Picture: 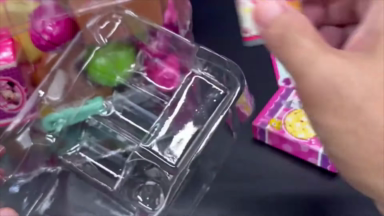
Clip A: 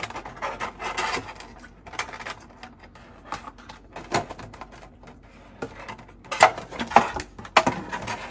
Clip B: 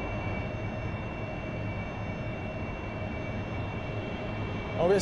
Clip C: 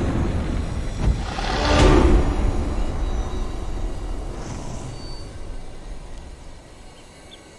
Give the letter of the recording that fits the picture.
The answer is A